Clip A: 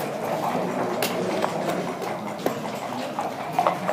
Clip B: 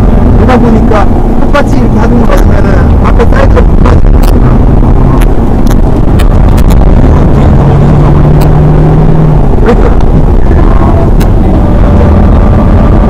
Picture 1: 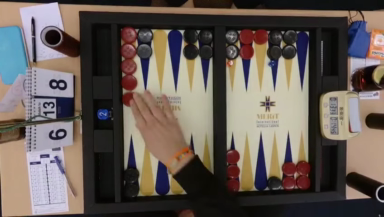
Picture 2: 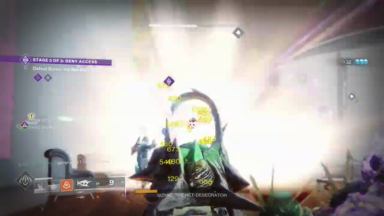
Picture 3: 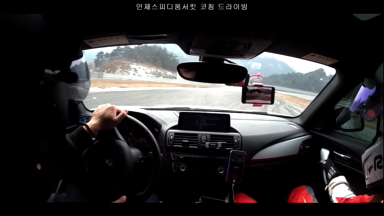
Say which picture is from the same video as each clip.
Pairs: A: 1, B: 3